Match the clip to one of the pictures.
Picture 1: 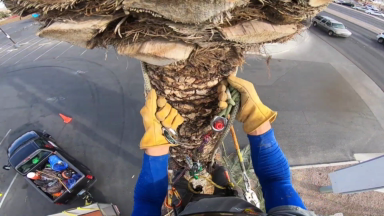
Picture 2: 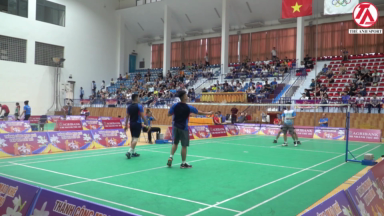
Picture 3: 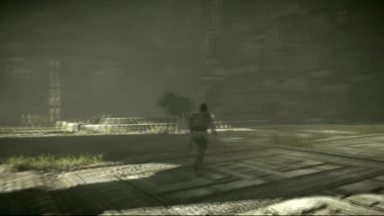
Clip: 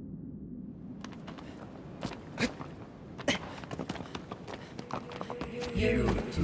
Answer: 3